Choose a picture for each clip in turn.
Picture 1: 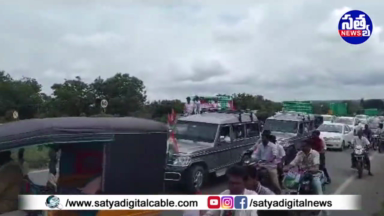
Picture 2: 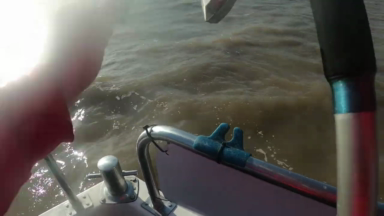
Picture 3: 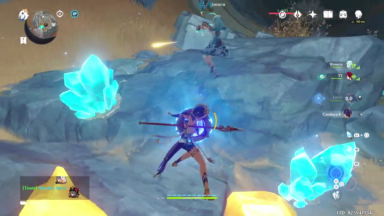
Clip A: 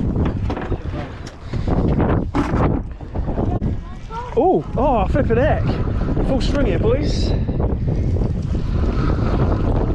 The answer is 2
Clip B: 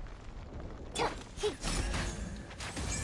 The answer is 3